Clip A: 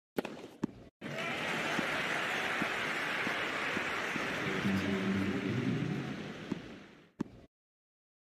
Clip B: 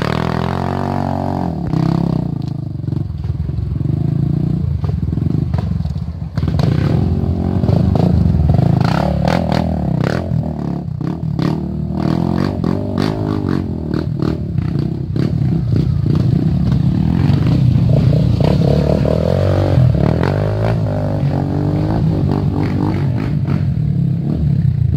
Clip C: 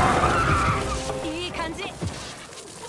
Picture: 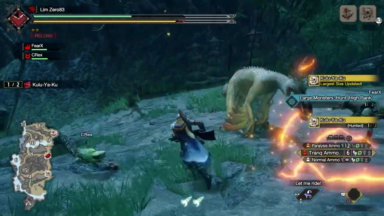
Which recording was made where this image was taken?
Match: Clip C